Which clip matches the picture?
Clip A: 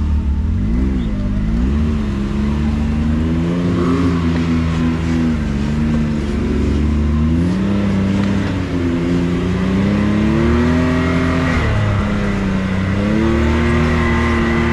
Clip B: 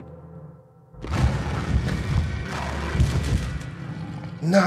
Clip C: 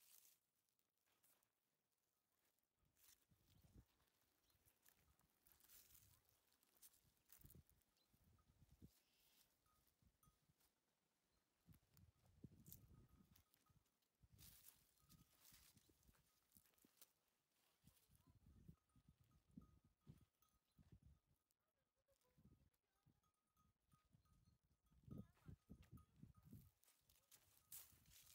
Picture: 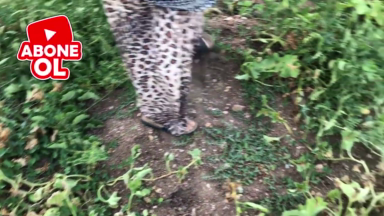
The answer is C